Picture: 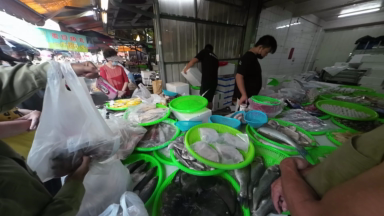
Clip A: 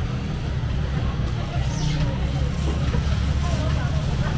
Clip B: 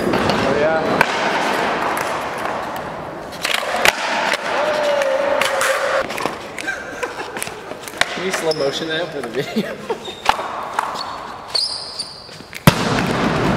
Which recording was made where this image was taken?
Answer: A